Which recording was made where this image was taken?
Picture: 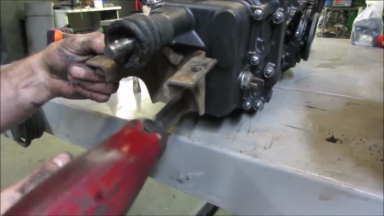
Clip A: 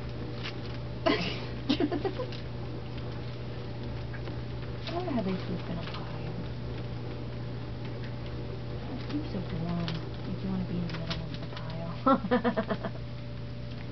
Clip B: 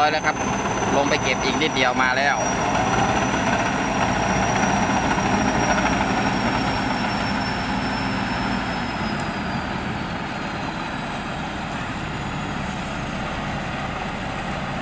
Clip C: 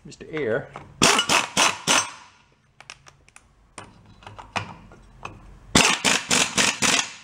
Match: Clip C